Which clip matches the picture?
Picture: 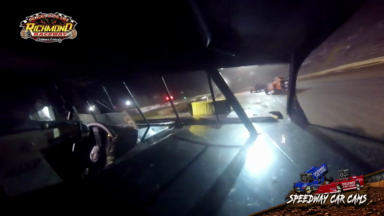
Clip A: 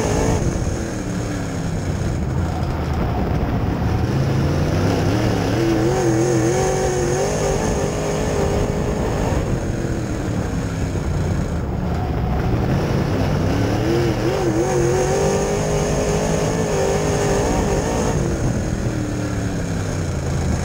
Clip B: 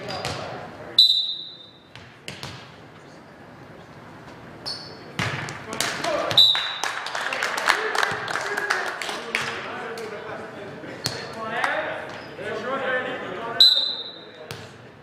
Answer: A